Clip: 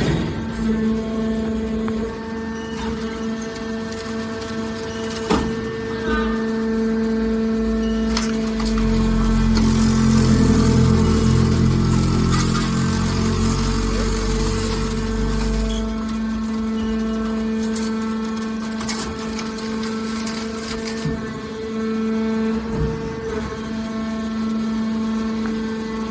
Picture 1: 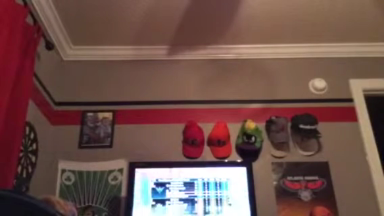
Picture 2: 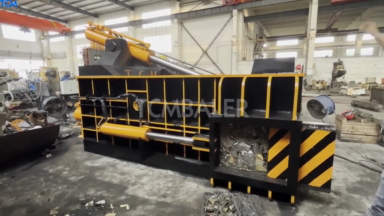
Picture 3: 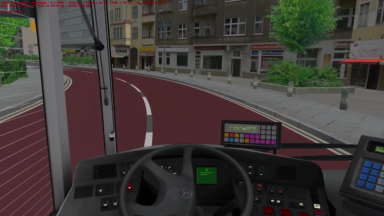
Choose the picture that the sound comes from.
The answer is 2